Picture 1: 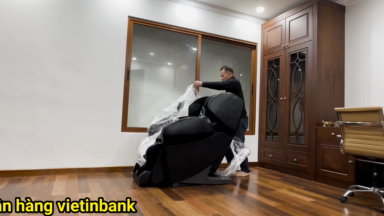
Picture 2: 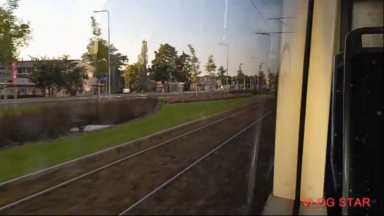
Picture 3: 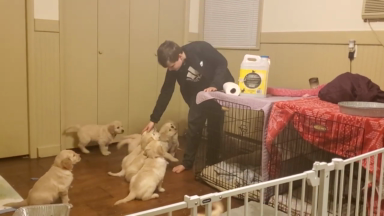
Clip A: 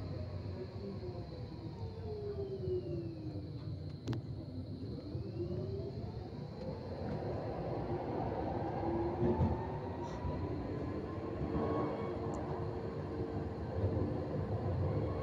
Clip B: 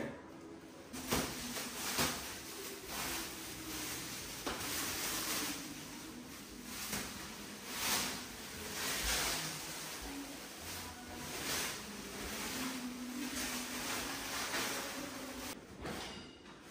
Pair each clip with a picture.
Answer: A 2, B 1